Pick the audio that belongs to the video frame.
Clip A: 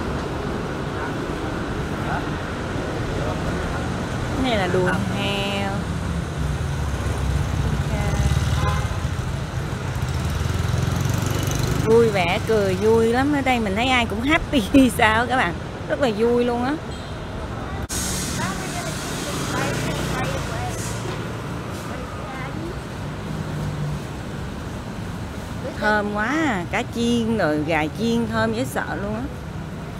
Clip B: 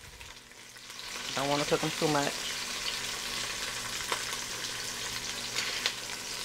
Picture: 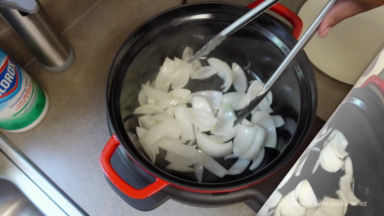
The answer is B